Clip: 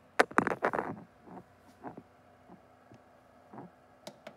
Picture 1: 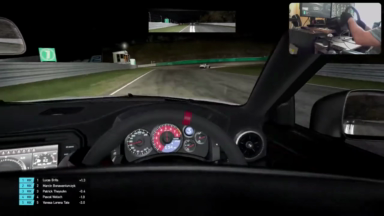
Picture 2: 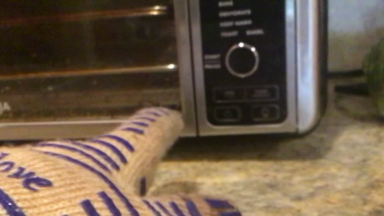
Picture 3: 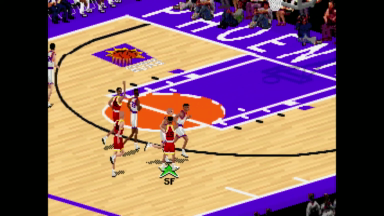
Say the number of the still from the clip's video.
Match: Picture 2